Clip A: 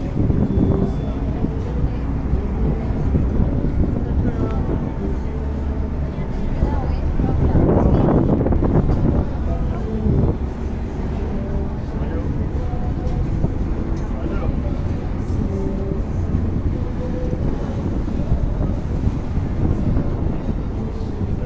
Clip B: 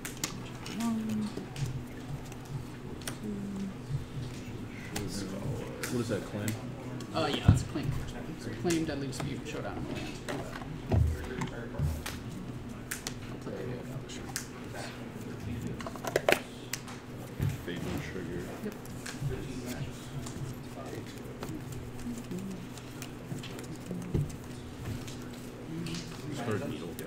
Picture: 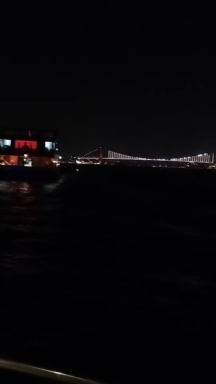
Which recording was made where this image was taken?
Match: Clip A